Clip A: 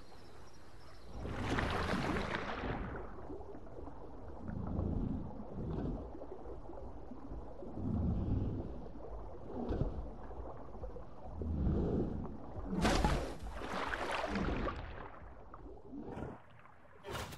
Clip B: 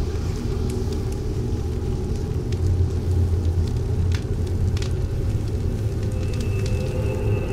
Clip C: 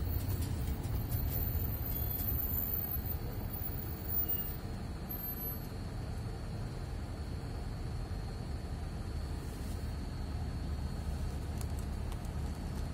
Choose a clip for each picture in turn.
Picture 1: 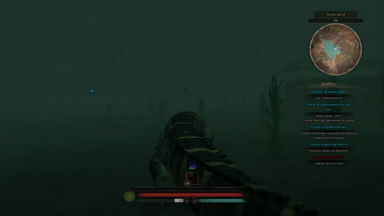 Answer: A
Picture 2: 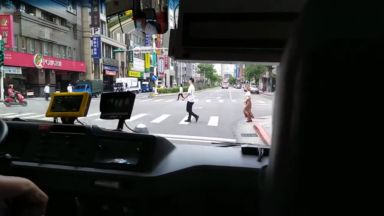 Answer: C